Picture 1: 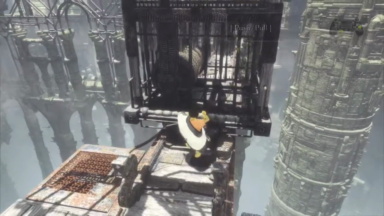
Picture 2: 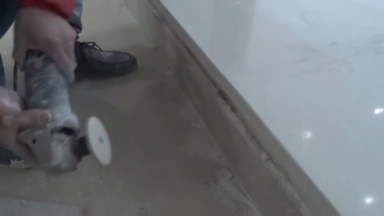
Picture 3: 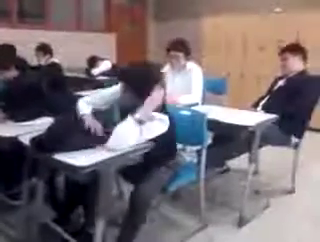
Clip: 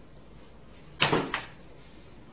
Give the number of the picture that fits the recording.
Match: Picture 3